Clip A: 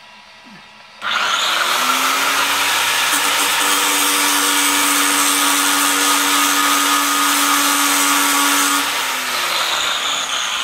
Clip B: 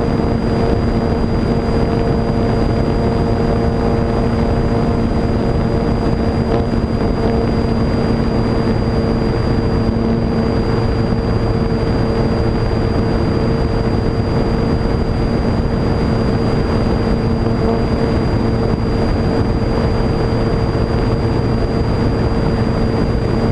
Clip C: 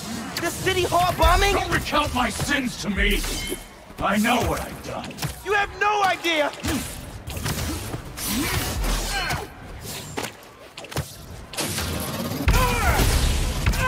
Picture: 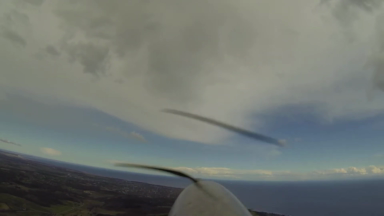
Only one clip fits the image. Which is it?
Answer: B